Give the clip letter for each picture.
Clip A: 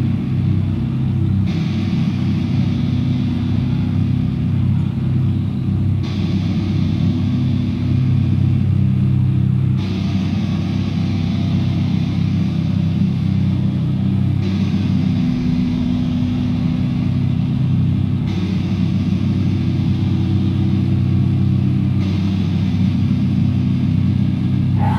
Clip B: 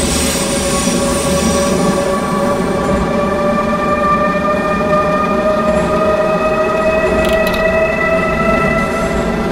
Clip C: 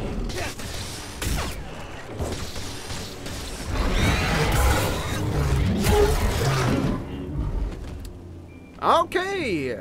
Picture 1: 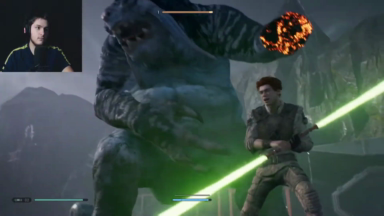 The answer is C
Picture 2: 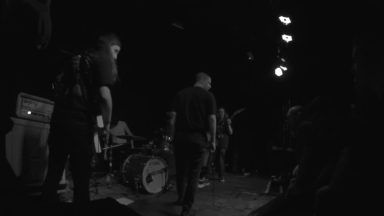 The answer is A